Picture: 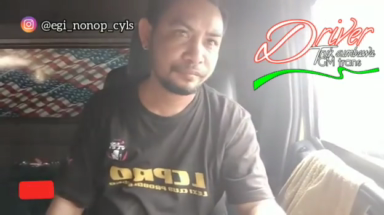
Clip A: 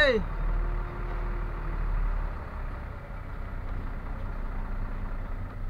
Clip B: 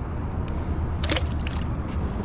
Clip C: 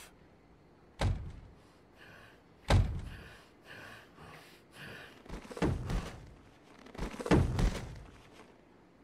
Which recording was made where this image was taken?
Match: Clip A